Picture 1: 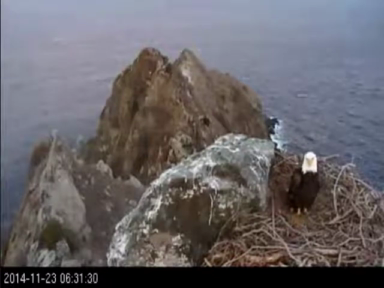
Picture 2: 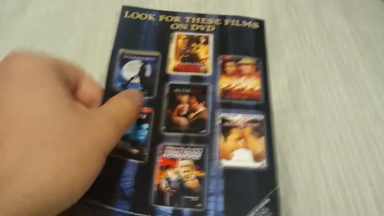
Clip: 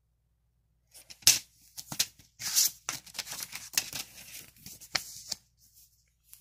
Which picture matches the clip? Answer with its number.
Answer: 2